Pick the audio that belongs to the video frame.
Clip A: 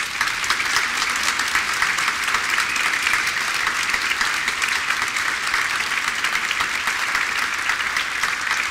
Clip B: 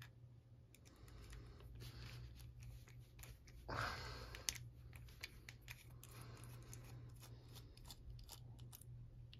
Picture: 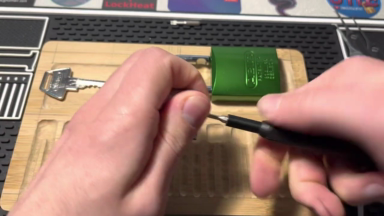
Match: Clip B